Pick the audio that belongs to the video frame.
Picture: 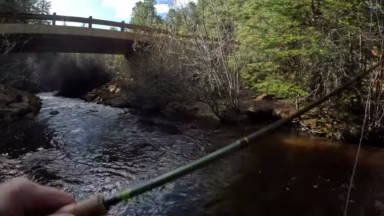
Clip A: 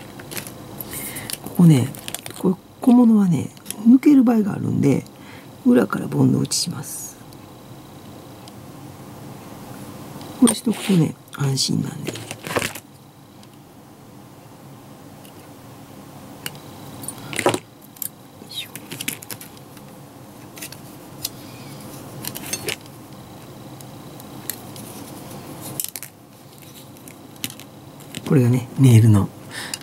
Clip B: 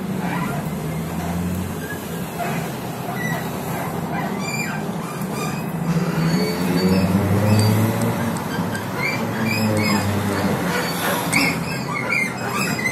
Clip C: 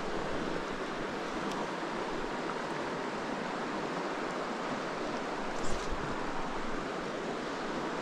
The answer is C